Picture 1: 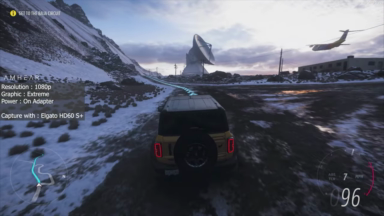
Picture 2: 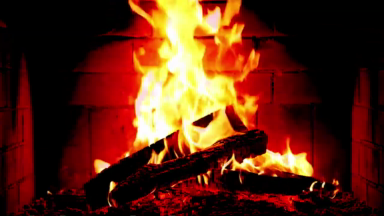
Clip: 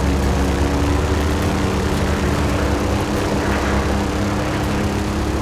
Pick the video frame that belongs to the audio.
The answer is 1